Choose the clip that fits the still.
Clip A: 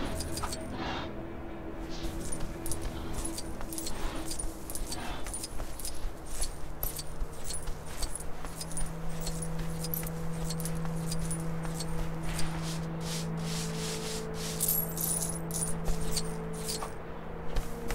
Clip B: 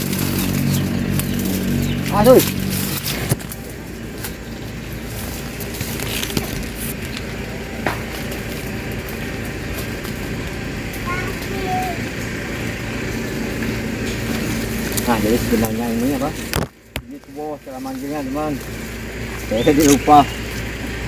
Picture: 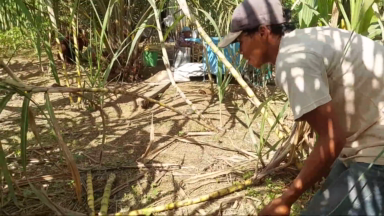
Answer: B